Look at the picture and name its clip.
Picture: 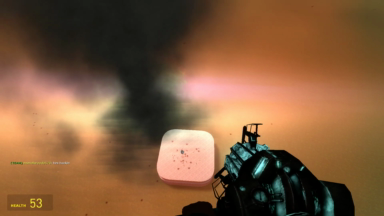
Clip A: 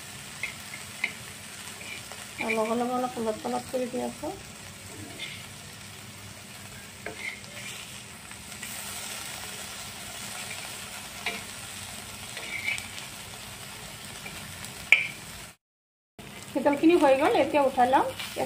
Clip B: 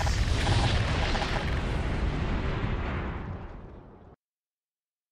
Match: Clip B